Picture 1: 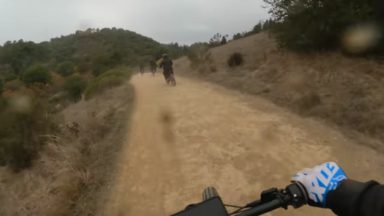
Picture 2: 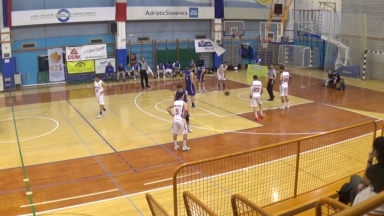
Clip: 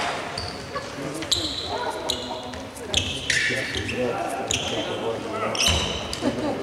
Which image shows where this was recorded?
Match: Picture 2